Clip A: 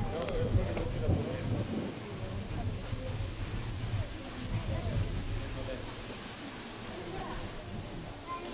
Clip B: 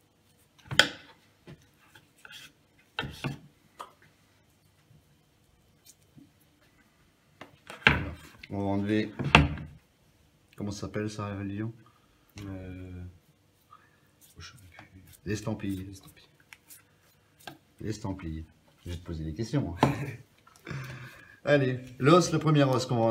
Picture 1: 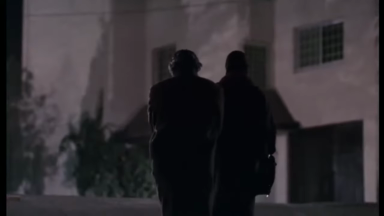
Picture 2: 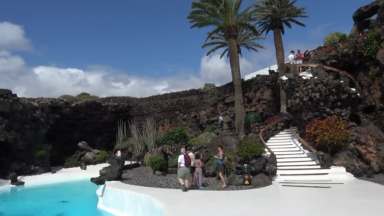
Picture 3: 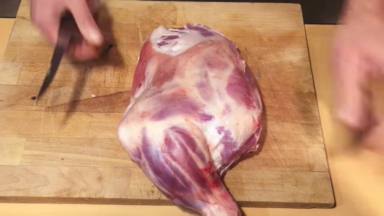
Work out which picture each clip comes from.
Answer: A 2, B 3